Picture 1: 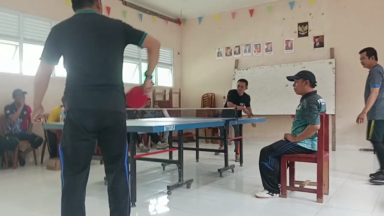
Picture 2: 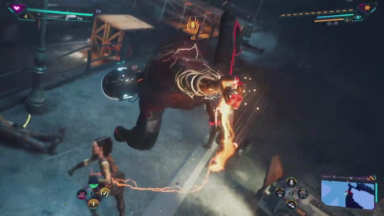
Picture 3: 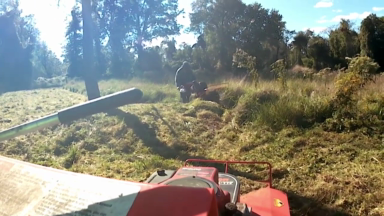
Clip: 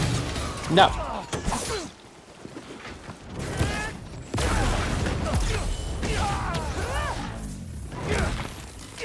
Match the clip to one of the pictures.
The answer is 2